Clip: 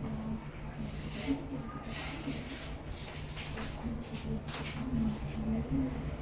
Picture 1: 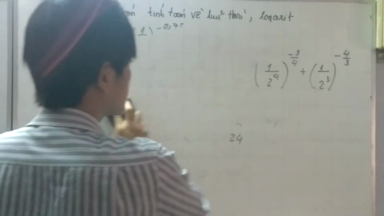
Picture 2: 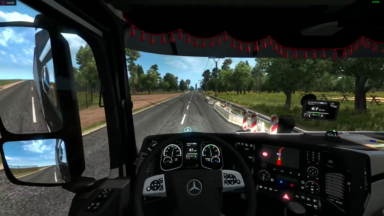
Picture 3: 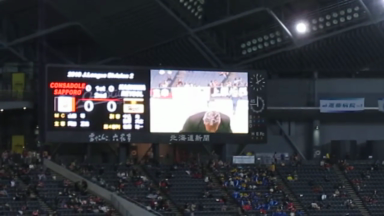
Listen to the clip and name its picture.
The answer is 1